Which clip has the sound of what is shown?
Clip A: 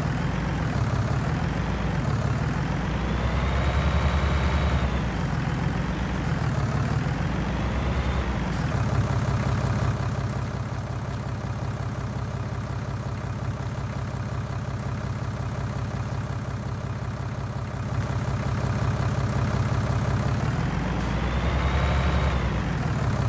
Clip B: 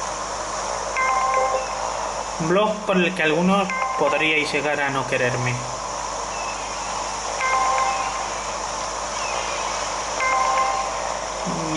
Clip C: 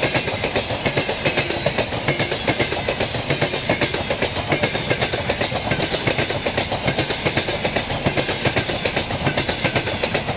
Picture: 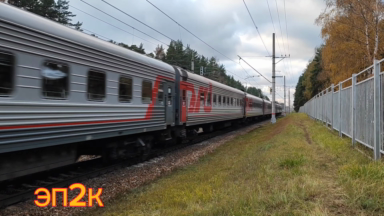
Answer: C